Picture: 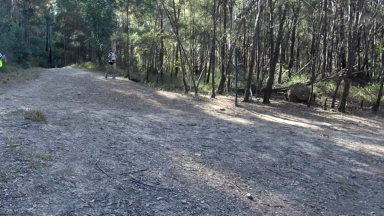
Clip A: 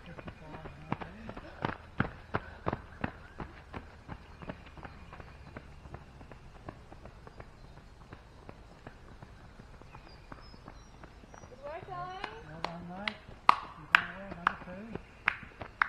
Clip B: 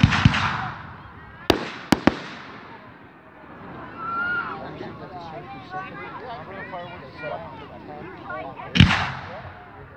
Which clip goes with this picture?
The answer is A